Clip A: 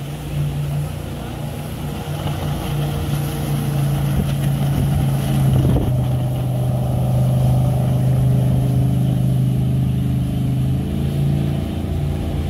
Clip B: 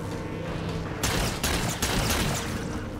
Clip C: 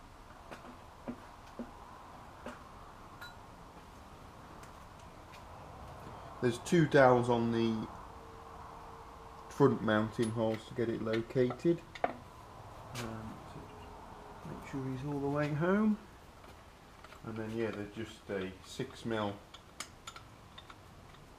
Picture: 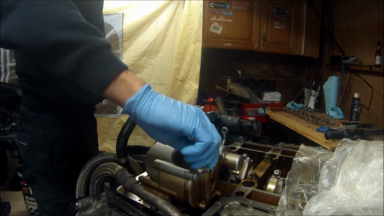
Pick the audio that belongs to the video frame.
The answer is C